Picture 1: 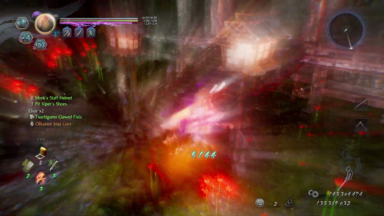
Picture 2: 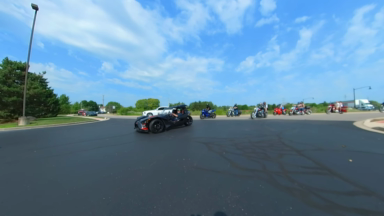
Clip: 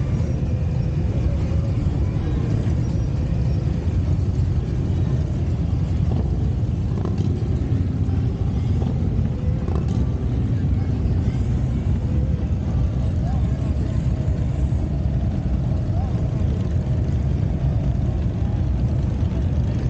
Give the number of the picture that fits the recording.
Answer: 2